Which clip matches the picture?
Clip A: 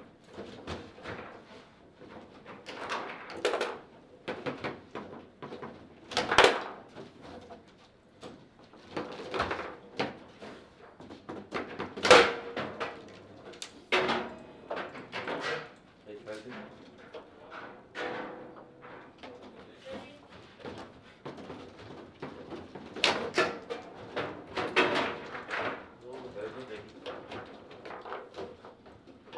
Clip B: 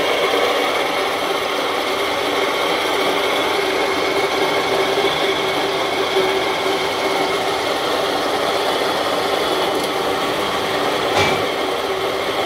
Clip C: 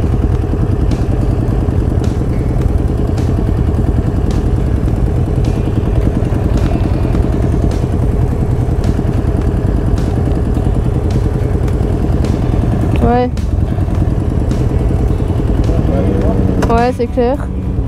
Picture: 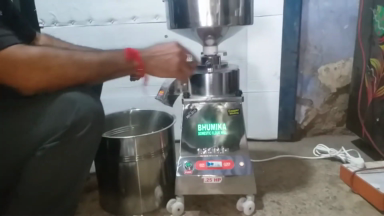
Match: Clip B